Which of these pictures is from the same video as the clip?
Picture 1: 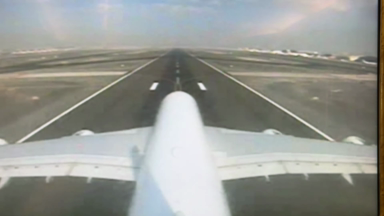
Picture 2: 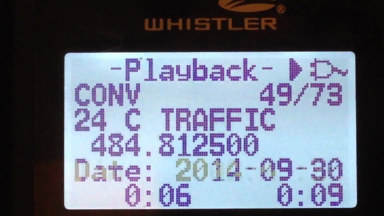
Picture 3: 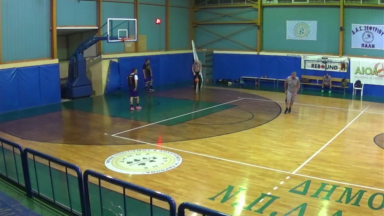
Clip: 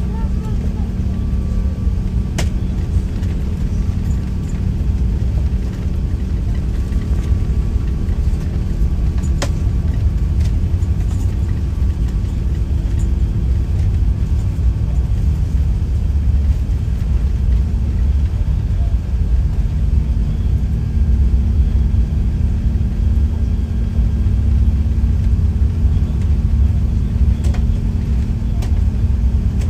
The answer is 1